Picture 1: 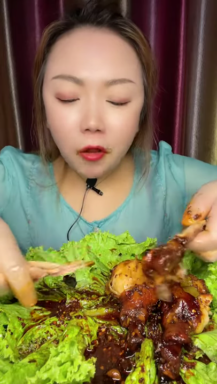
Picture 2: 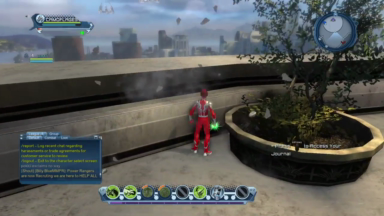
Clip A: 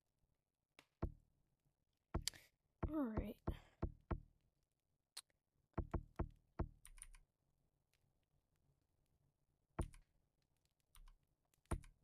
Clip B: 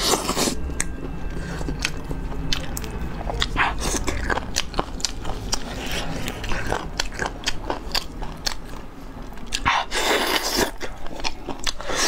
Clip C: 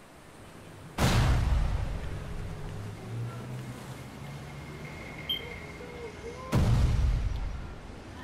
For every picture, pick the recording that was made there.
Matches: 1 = B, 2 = C